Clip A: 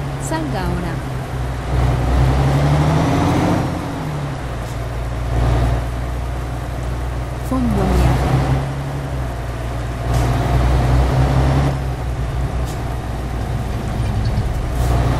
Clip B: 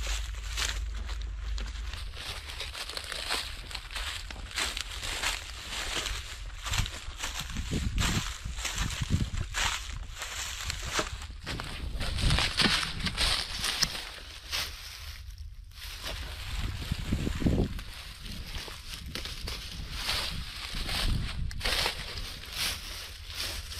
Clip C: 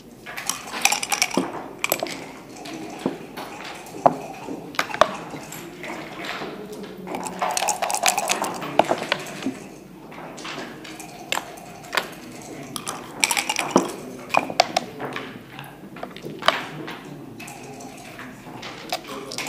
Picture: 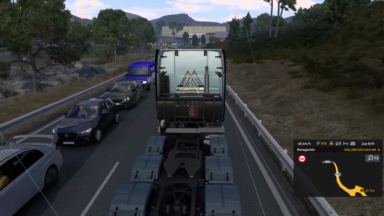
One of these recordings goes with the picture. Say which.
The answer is A